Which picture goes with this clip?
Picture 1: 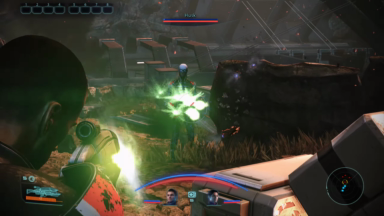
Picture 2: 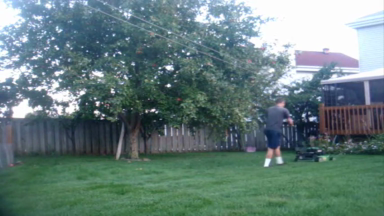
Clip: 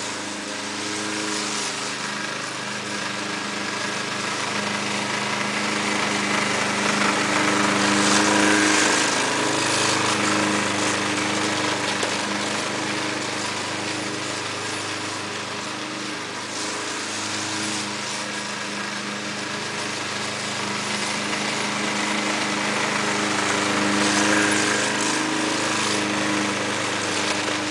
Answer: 2